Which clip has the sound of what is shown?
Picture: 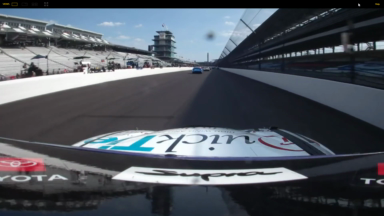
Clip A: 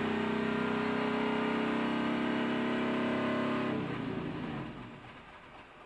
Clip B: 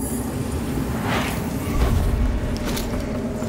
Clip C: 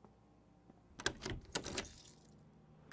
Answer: A